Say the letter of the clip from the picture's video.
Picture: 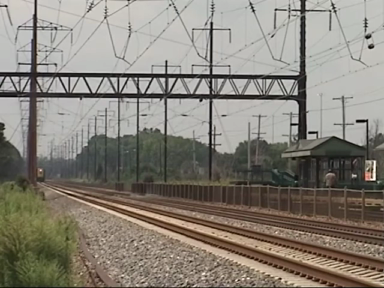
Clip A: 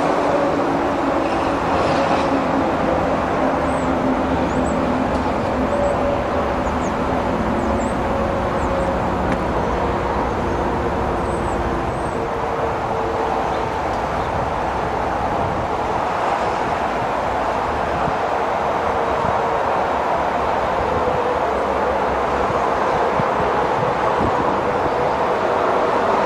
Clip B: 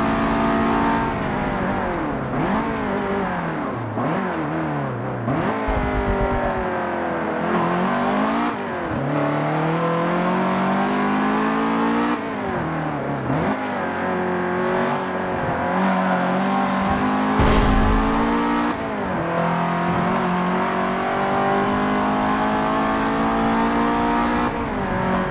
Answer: A